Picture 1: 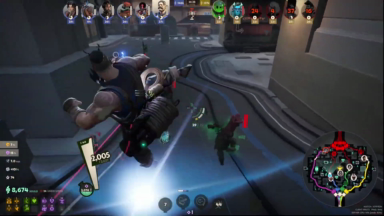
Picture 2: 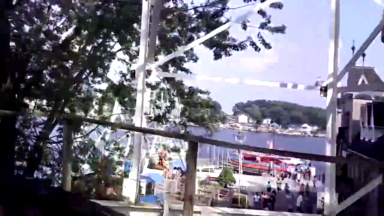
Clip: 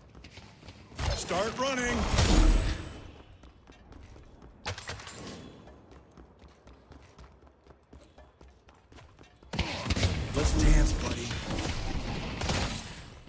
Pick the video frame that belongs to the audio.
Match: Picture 1